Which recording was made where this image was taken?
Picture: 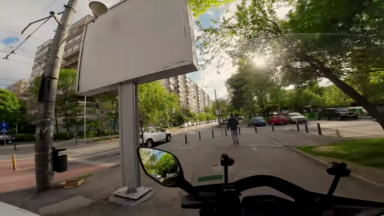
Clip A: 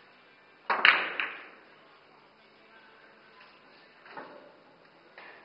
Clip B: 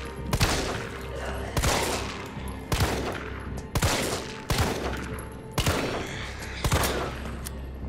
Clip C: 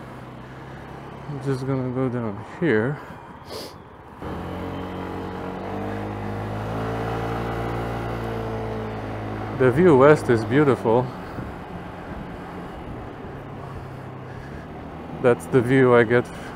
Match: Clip C